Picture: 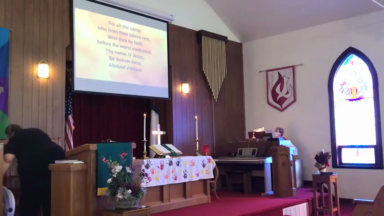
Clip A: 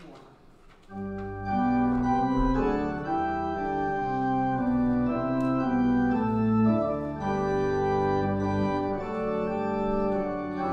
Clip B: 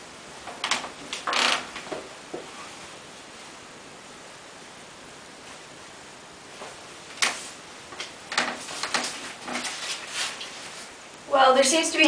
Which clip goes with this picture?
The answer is A